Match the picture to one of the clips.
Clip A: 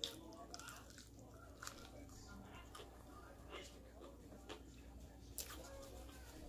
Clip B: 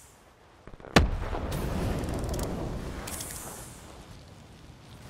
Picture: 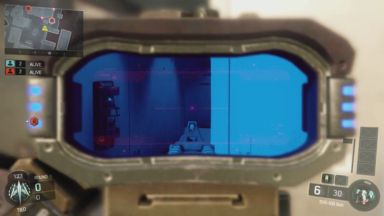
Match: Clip B